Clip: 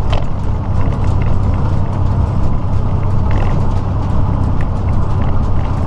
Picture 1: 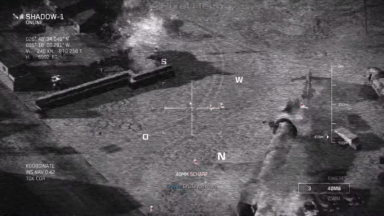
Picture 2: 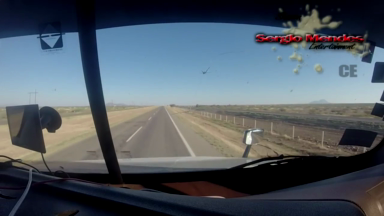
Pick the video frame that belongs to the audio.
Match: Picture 2